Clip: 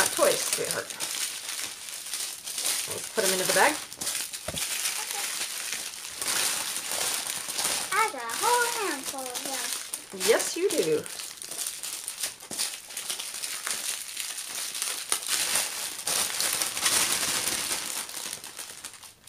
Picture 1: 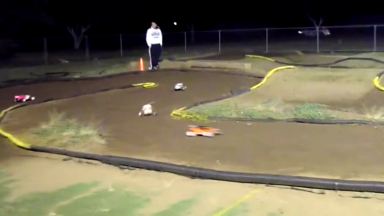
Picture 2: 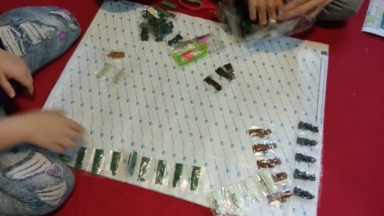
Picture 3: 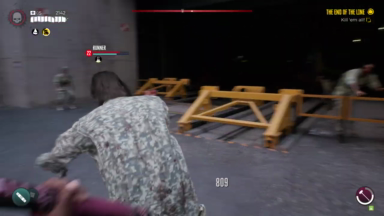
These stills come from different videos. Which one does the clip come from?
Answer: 2